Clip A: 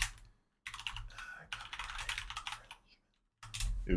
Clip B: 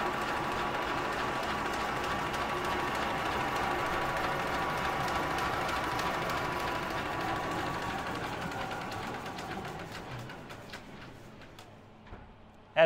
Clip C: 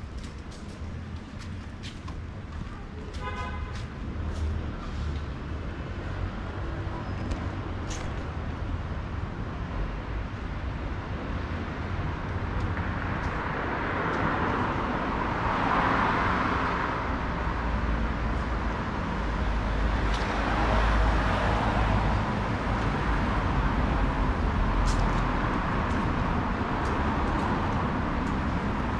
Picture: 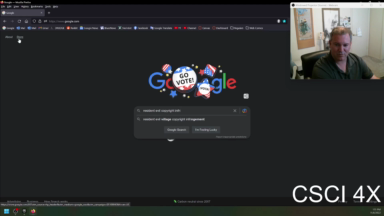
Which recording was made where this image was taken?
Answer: A